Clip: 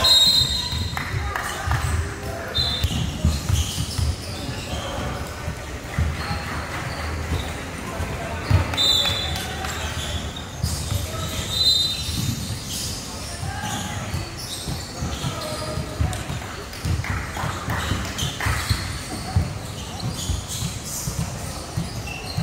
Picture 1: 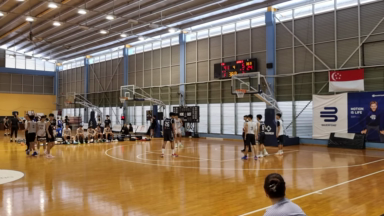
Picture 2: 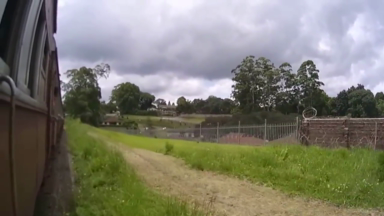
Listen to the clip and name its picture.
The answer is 1